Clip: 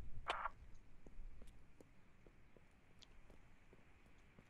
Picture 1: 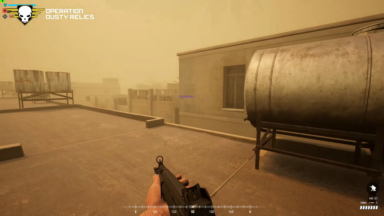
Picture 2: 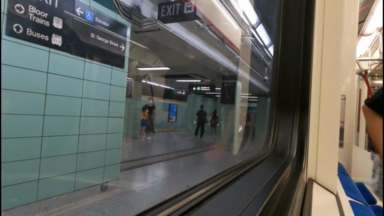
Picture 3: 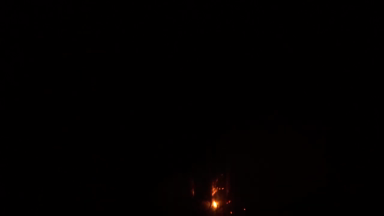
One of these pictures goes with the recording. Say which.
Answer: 1